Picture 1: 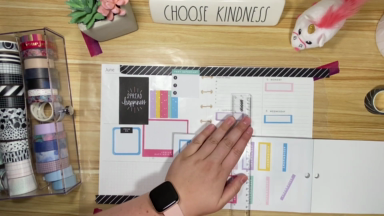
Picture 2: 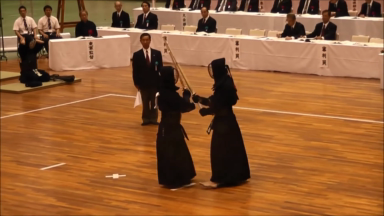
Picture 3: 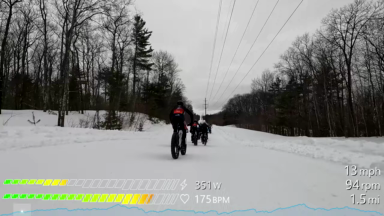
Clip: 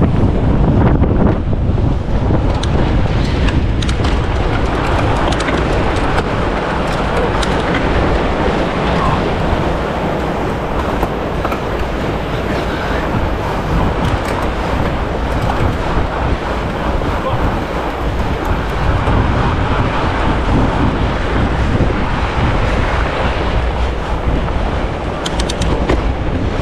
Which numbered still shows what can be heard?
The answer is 3